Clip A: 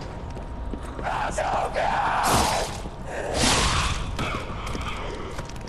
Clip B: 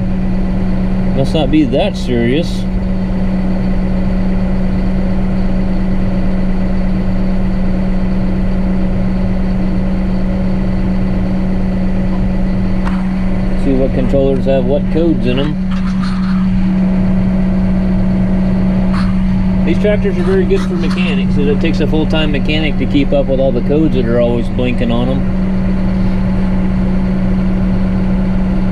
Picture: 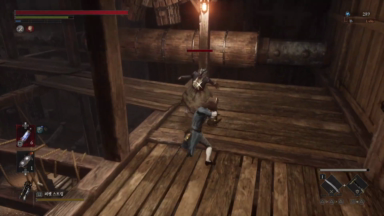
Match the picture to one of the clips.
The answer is A